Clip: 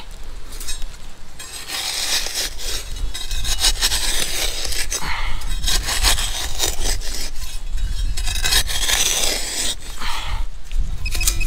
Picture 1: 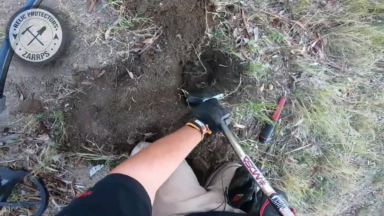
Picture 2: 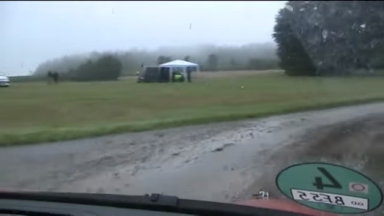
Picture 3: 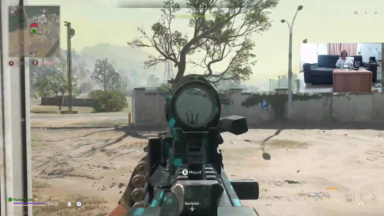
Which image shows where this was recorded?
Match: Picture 1